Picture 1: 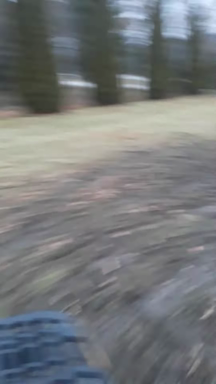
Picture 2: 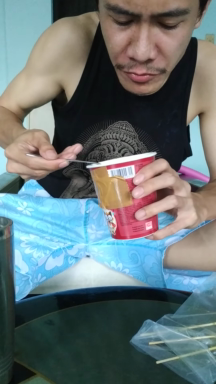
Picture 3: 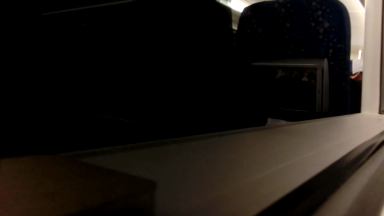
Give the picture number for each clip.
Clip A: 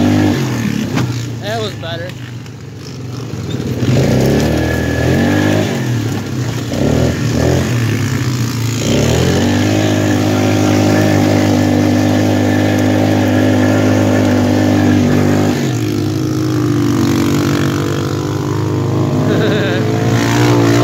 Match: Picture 1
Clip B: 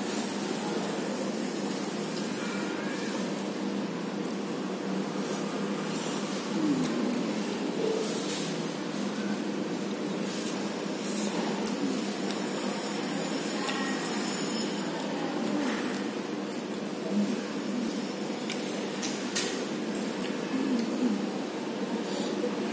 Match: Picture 2